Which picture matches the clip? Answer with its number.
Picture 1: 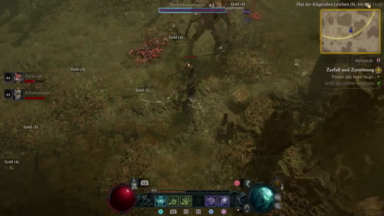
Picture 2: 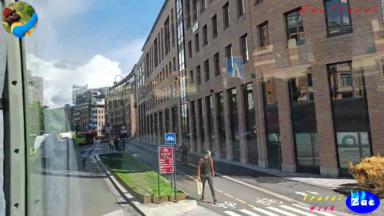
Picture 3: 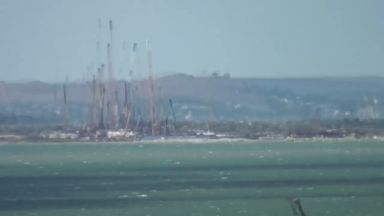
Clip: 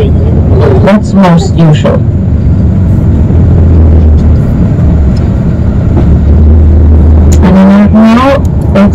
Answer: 2